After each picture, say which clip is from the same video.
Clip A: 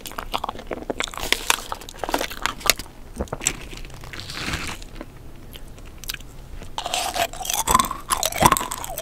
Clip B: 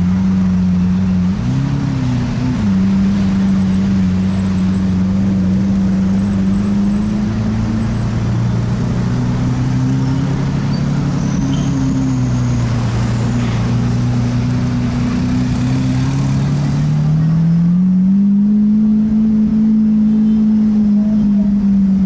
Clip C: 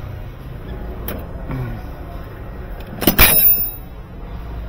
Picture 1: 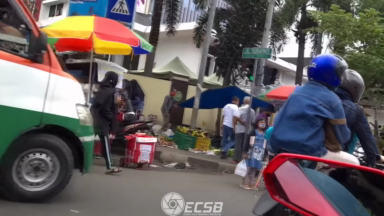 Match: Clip B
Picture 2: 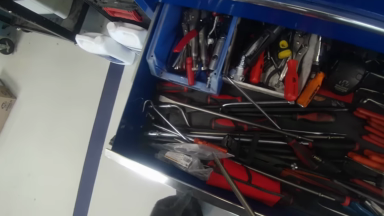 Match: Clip C